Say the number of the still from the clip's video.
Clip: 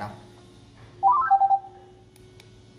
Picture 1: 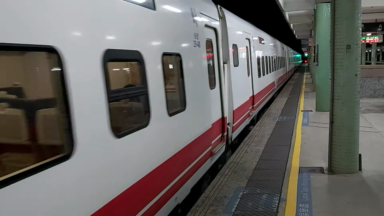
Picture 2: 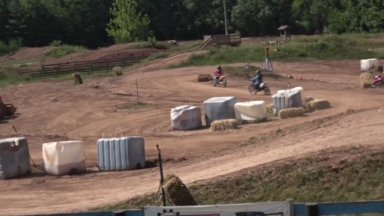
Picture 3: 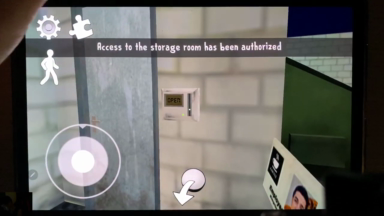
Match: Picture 3